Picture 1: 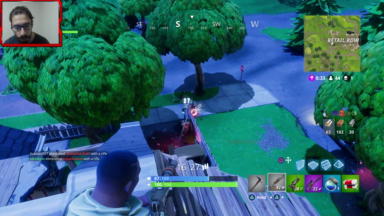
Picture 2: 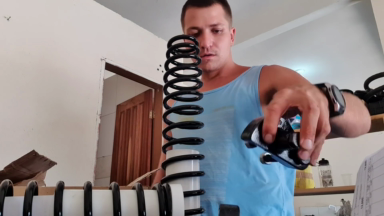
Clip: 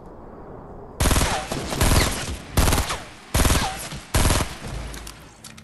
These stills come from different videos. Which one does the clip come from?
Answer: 1